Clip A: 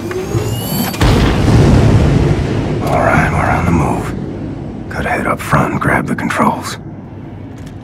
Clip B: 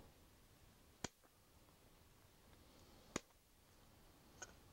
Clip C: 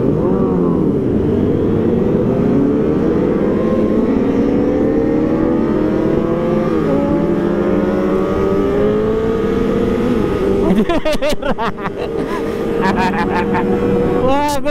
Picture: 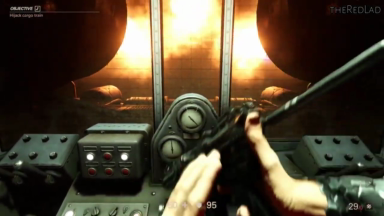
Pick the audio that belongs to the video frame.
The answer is A